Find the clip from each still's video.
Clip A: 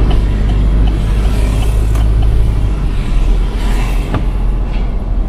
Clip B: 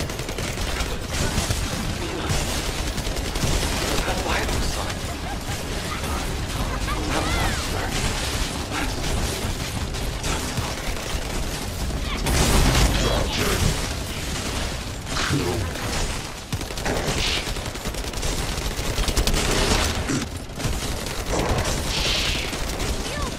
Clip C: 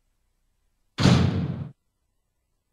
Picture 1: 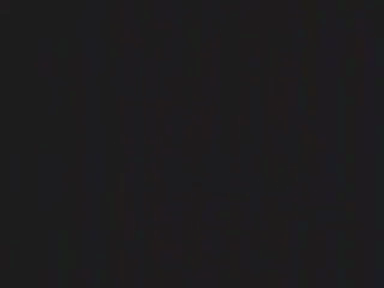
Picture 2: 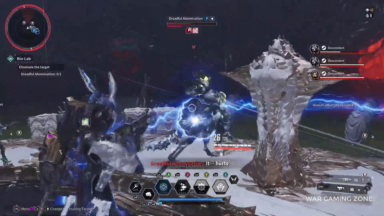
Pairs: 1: C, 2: B